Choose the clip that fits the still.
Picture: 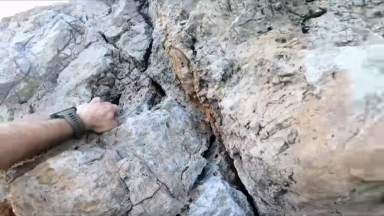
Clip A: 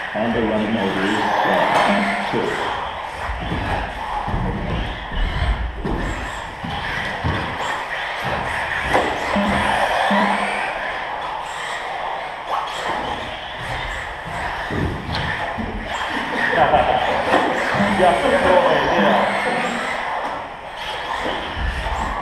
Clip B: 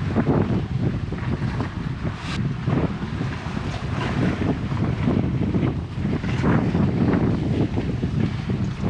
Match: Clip B